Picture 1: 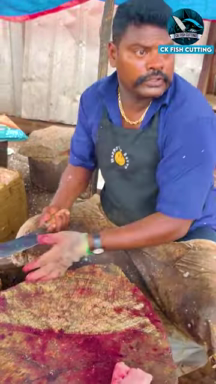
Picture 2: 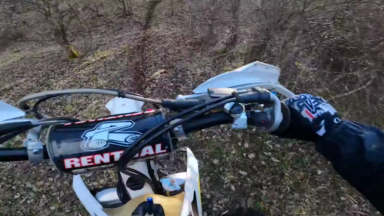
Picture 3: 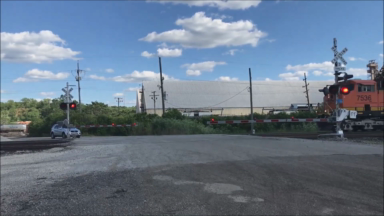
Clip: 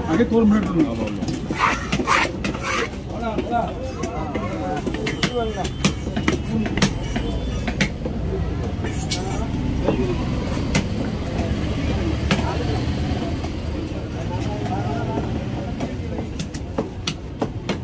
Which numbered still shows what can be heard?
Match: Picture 1